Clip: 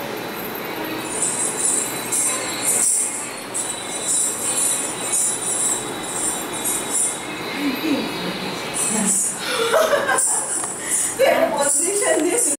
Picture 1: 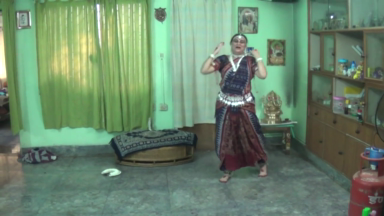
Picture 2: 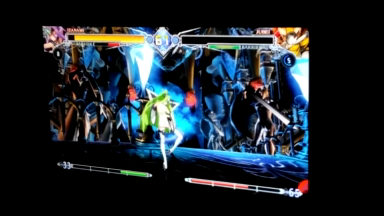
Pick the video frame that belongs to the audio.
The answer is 1